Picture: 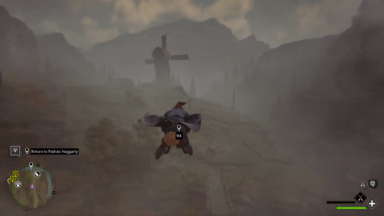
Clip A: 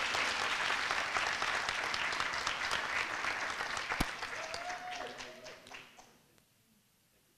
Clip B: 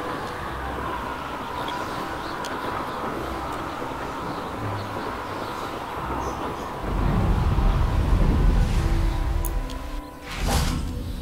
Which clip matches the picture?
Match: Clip B